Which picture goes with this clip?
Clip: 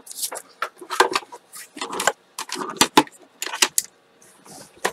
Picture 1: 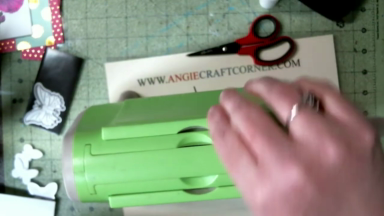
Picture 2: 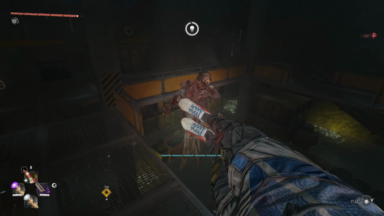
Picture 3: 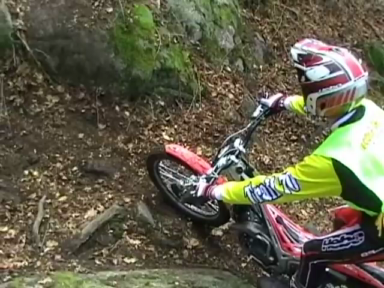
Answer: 1